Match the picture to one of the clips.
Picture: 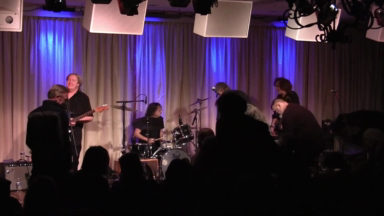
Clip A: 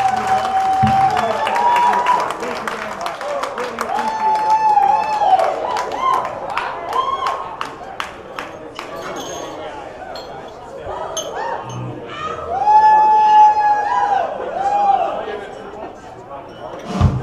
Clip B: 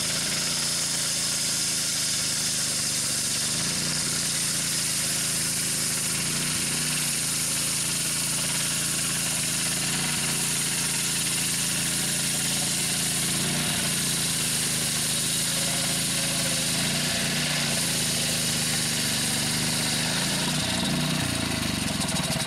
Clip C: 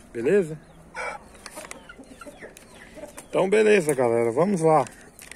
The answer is A